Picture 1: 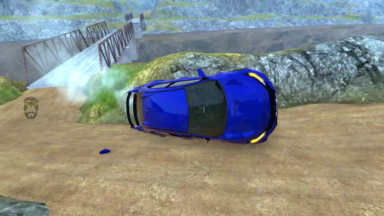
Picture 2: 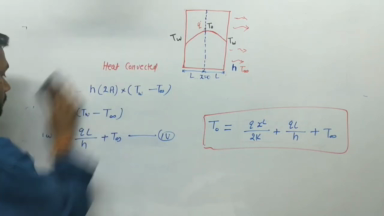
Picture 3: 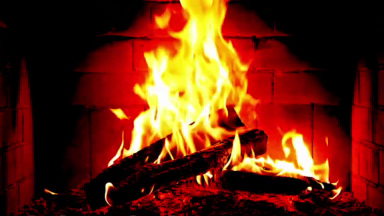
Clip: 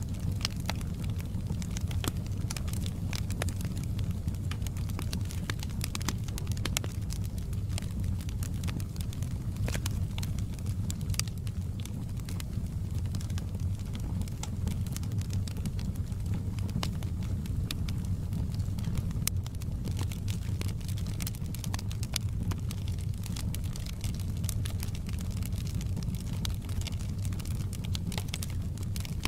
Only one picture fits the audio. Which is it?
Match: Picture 3